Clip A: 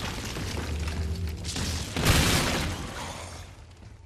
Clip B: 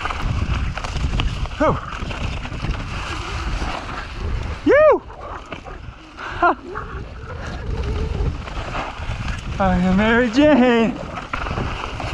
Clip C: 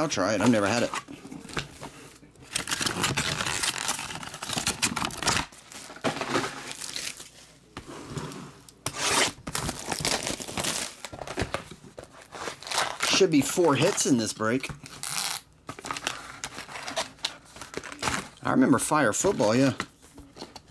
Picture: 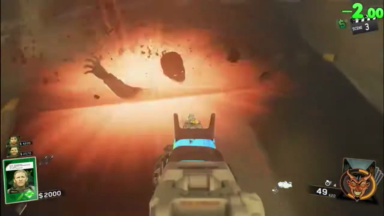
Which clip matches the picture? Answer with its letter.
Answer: A